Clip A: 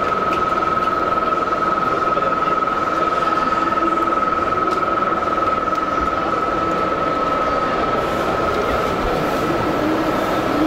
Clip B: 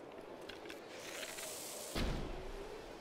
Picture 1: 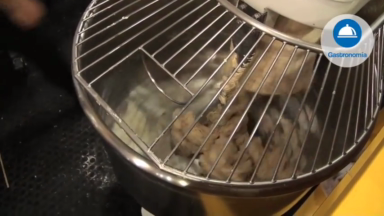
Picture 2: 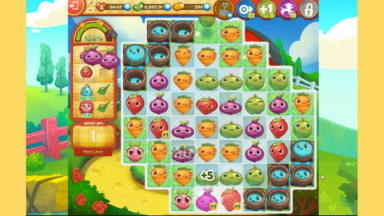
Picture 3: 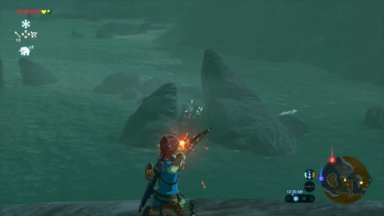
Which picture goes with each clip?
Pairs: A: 1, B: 3